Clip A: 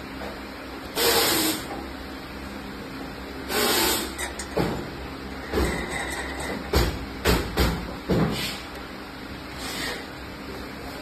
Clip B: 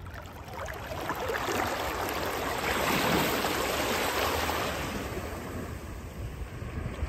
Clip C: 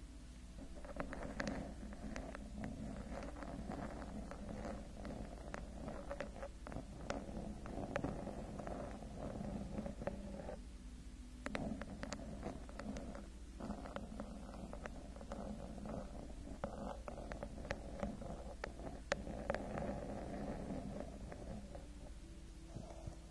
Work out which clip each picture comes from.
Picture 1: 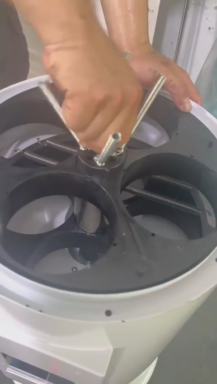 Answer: A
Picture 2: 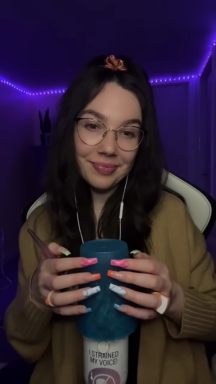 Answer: C